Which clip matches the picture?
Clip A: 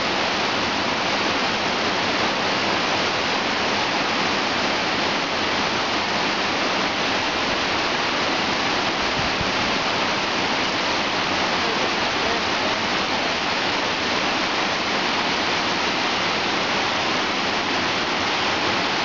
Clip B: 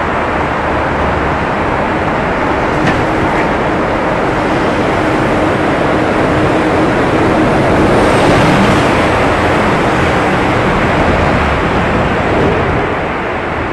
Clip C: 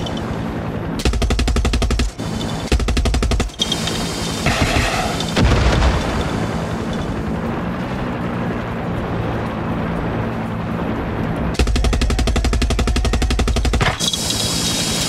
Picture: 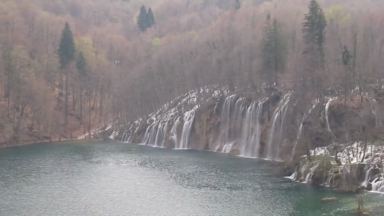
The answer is A